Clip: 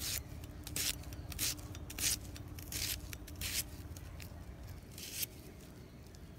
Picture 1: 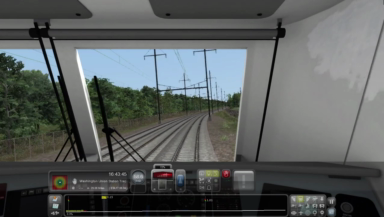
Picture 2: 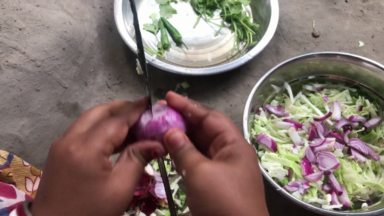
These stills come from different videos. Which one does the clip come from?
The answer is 2